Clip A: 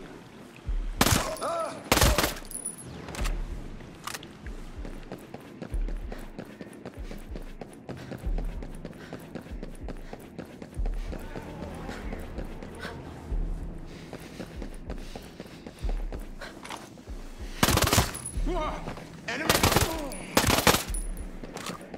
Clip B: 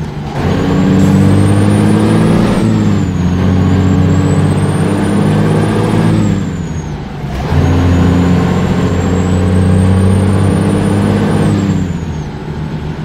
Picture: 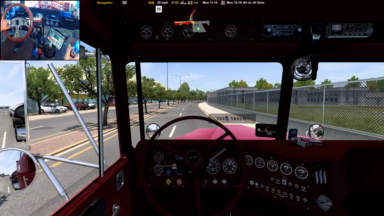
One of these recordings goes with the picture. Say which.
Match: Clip B